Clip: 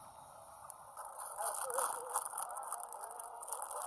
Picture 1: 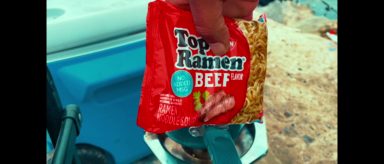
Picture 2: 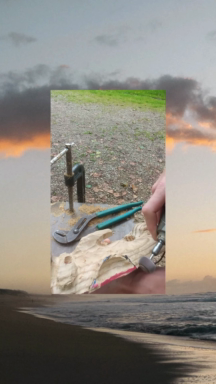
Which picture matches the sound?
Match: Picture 1